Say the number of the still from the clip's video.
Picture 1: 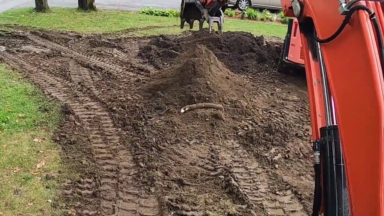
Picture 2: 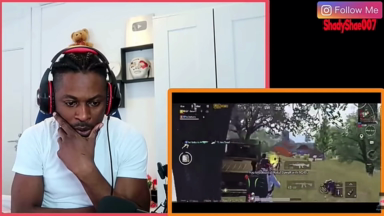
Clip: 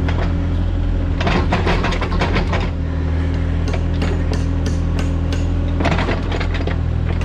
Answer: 1